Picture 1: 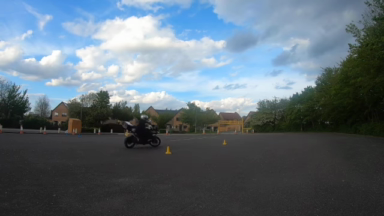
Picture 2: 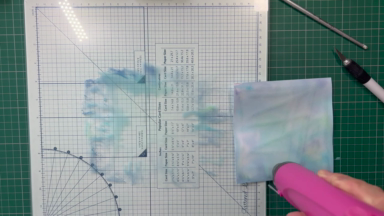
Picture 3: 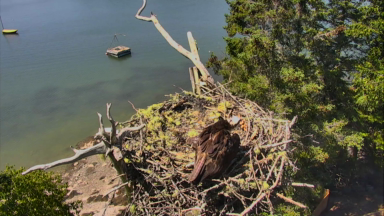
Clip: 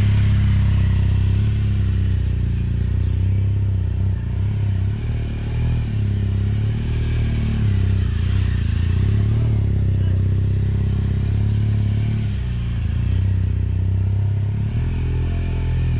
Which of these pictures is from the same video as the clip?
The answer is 1